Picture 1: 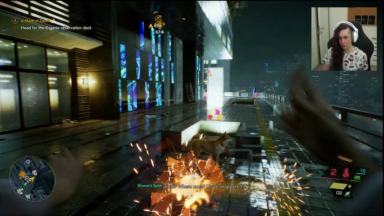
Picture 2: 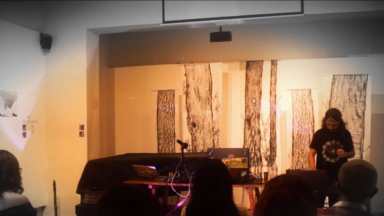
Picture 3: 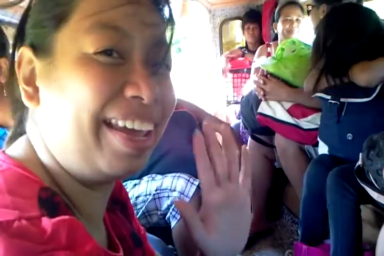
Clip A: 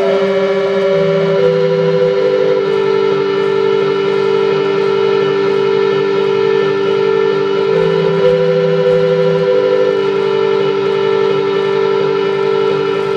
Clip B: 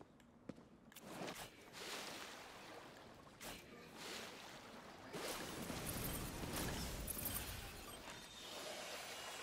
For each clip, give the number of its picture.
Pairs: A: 2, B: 1